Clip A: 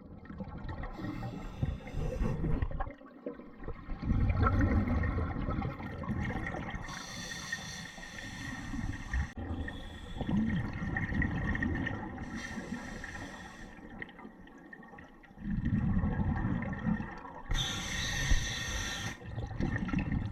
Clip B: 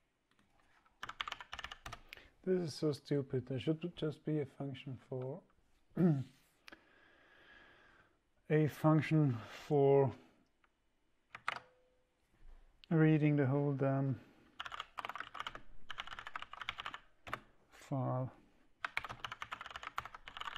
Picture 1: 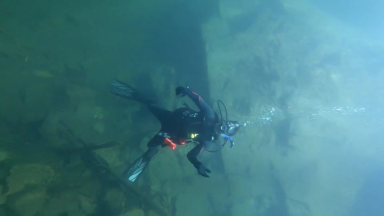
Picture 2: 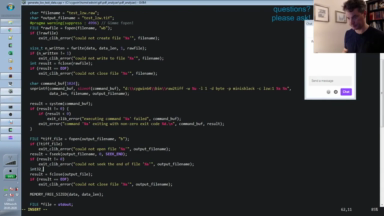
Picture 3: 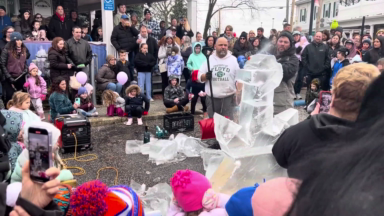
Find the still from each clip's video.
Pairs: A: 1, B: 2